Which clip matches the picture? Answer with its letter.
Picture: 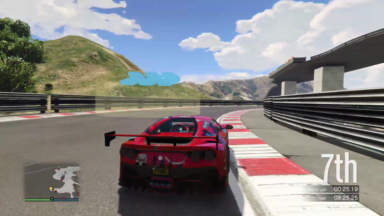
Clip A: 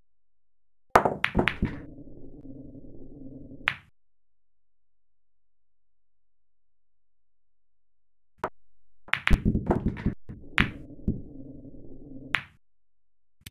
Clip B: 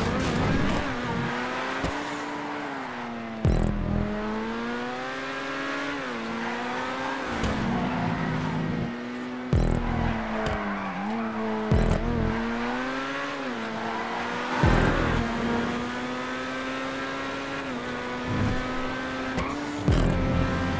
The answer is B